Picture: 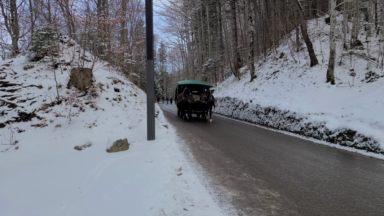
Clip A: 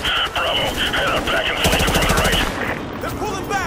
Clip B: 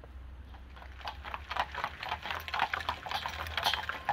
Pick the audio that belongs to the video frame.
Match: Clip B